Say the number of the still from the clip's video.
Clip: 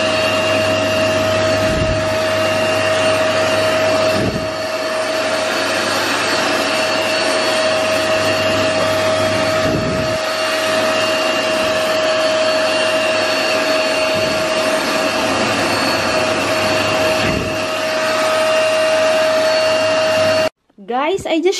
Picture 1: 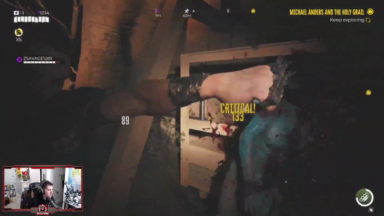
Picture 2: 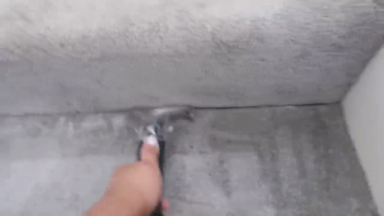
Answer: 2